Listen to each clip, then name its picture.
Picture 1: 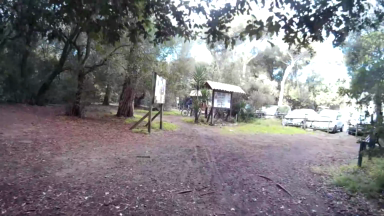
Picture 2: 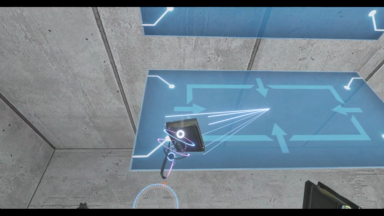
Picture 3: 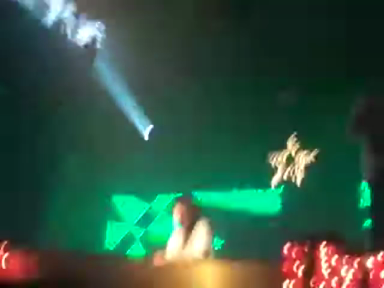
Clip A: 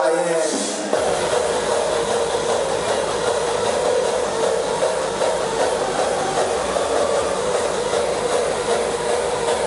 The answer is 3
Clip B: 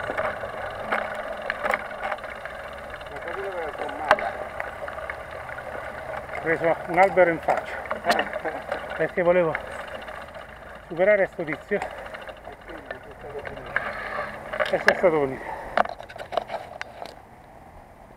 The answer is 1